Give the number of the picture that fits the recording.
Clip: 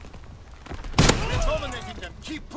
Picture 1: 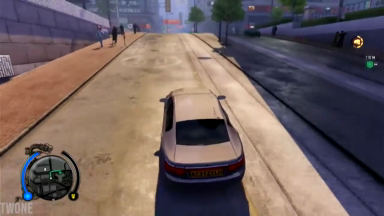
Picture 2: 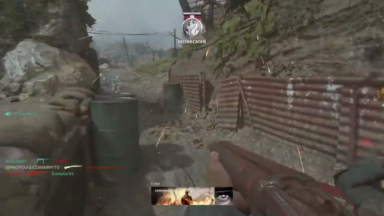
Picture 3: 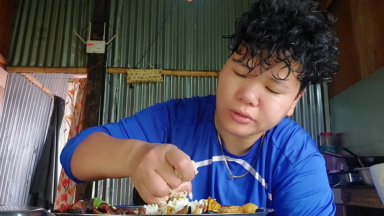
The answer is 2